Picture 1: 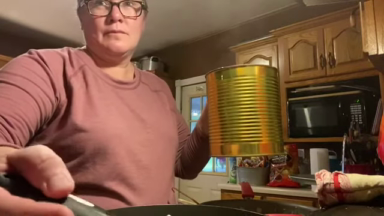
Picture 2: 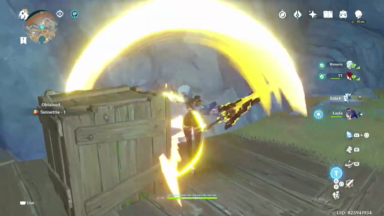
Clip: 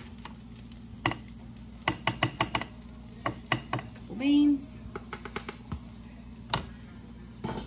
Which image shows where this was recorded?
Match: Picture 1